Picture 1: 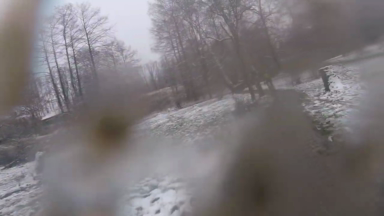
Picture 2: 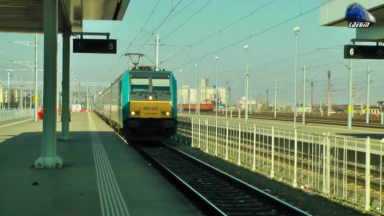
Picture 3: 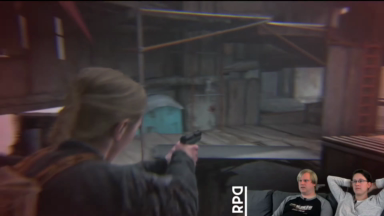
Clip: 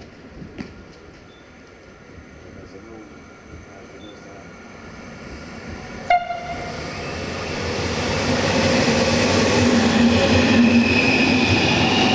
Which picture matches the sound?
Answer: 2